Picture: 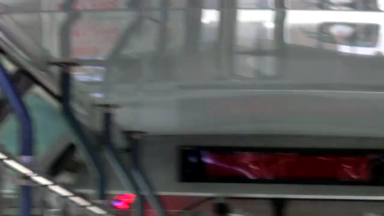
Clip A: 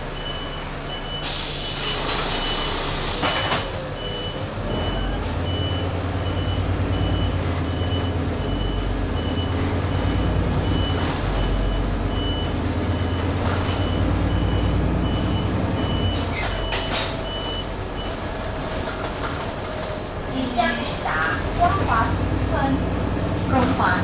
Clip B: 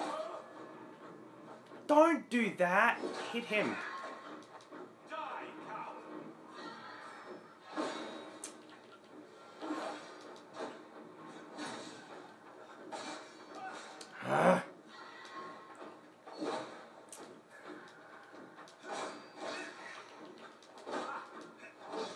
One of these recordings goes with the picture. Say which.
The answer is A